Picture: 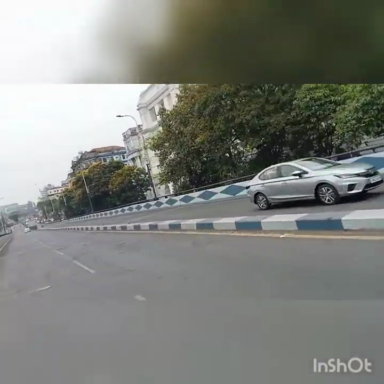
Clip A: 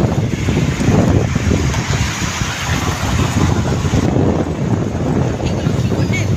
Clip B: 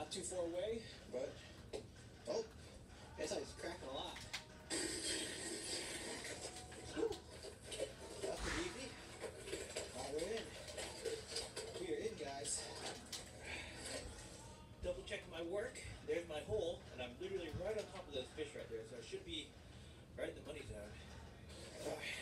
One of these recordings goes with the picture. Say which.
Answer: A